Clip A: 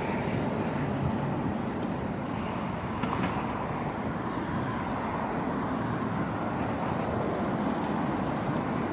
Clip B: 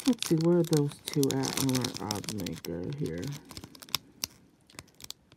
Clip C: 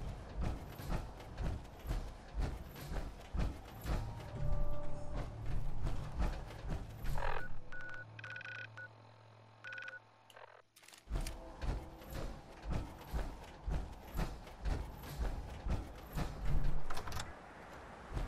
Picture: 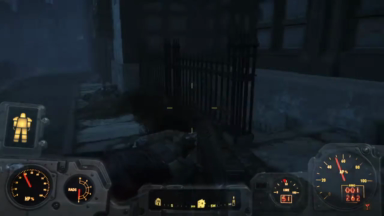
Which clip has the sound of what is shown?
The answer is C